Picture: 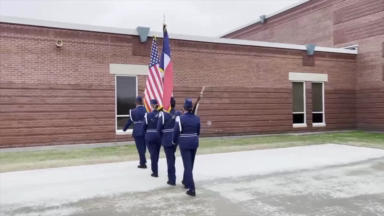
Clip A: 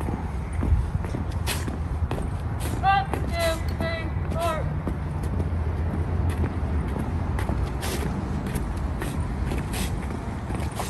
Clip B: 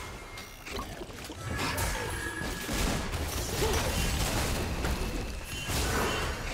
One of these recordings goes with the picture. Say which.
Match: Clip A